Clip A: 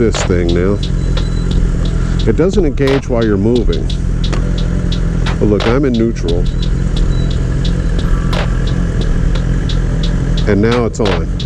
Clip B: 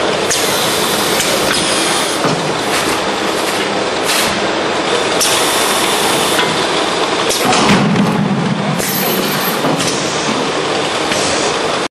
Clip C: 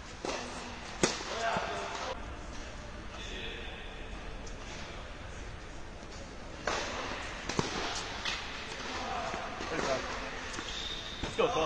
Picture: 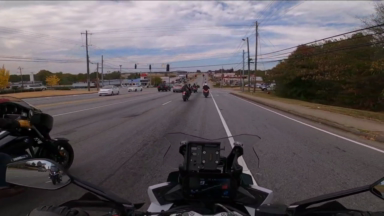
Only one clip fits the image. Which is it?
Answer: A